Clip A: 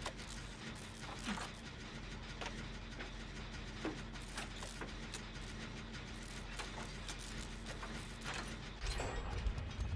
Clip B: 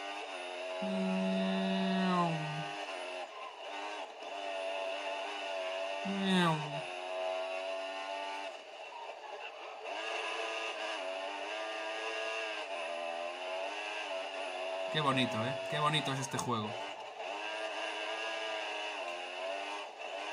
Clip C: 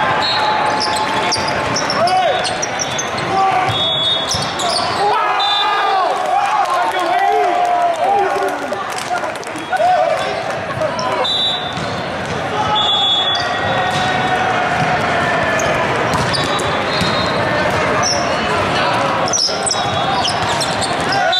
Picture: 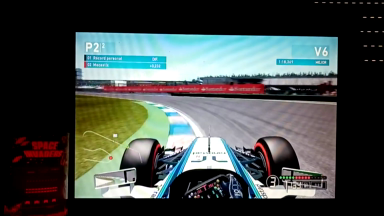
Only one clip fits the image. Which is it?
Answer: B